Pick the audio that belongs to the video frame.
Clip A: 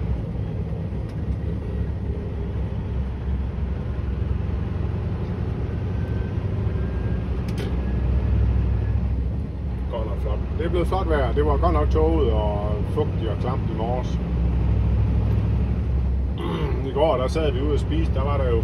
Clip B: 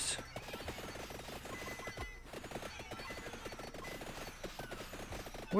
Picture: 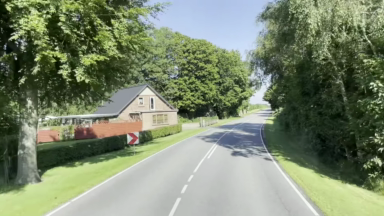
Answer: A